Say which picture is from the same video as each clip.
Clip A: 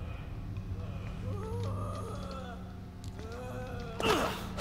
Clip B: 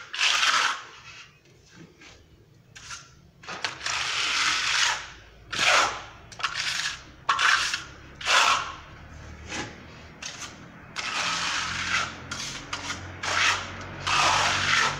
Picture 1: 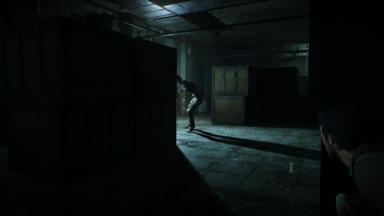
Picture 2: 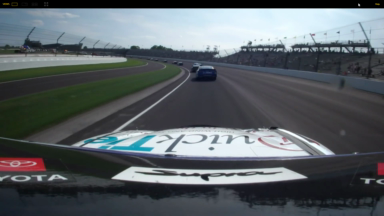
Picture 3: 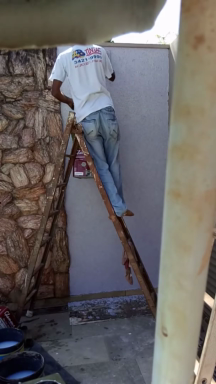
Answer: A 1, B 3